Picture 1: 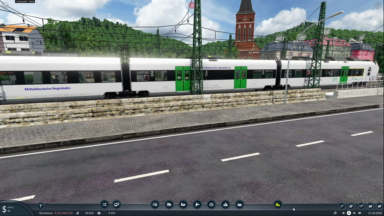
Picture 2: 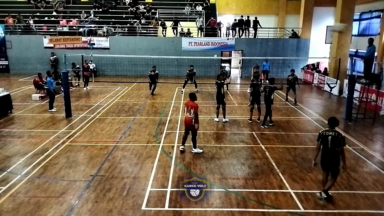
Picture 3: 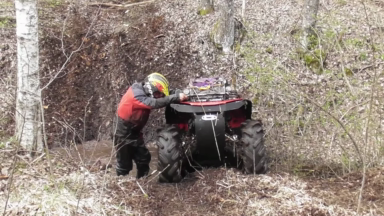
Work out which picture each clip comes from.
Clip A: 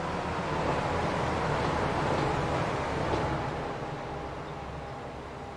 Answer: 1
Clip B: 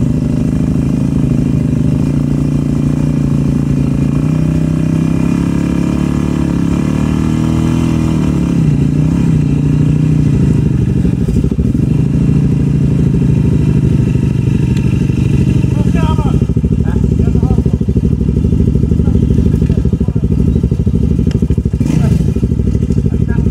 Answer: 3